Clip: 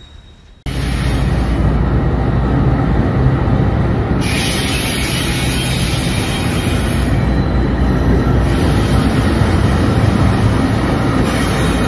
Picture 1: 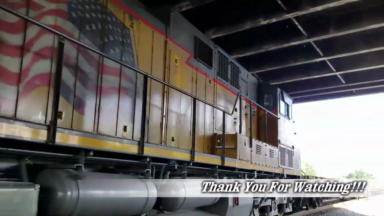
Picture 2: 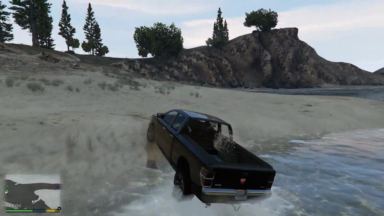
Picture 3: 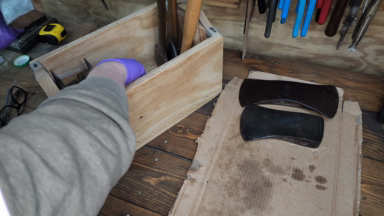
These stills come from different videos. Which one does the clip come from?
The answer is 1